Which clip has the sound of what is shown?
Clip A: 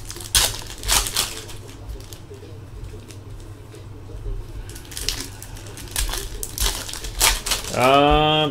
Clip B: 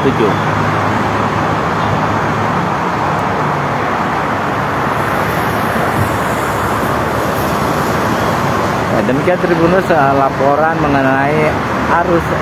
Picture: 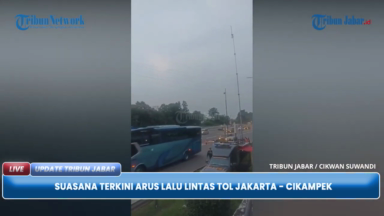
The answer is B